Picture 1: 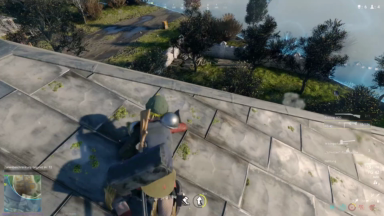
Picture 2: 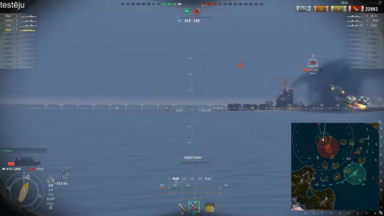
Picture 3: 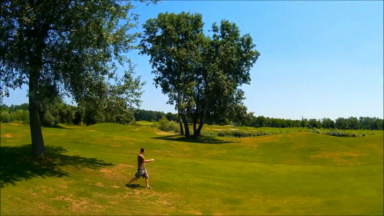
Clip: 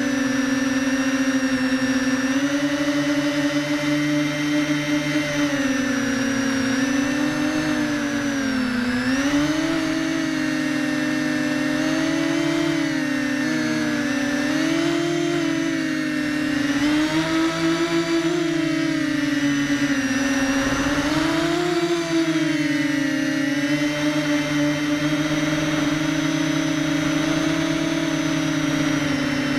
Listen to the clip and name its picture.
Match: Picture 3